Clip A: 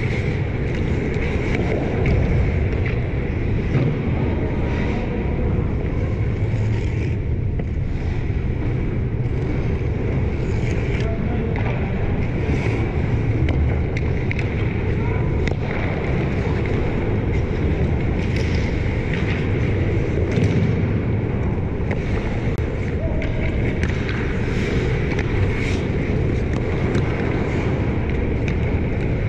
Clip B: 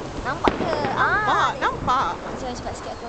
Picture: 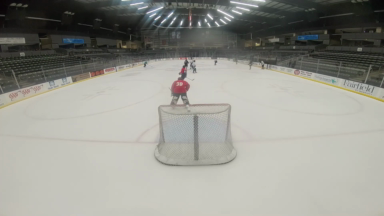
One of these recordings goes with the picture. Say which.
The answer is A